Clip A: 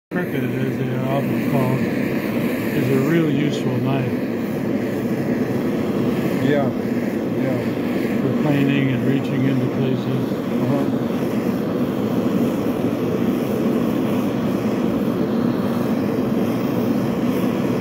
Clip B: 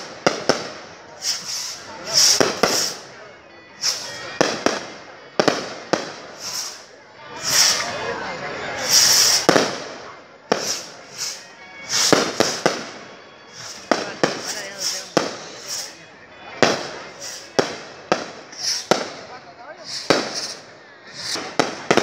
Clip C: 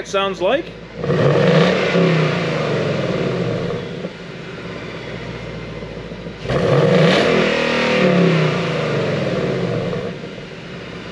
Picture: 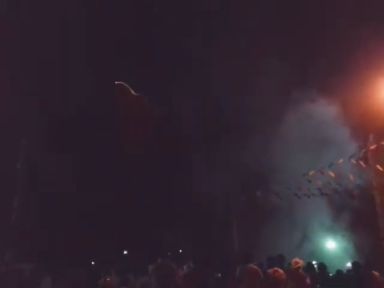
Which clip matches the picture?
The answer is B